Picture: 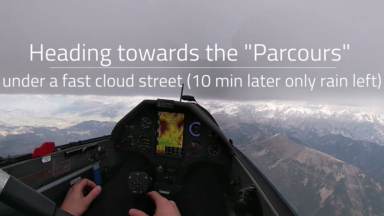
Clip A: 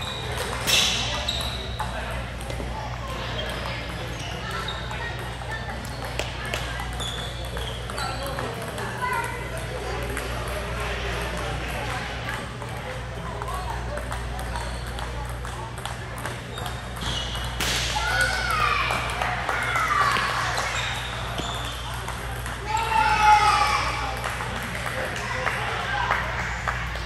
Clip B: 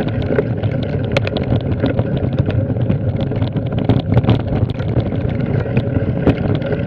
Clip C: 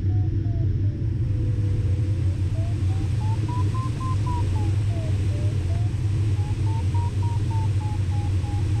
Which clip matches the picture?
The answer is C